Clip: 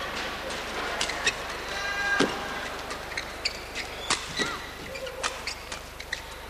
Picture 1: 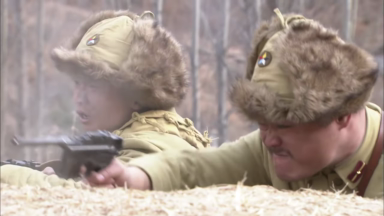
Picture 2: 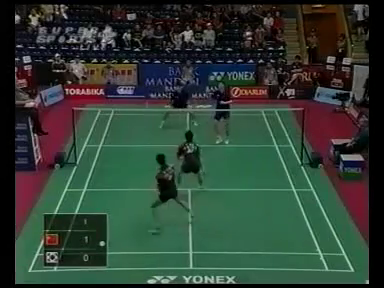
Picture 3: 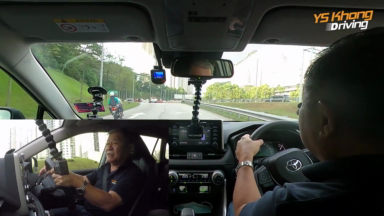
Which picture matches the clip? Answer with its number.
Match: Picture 2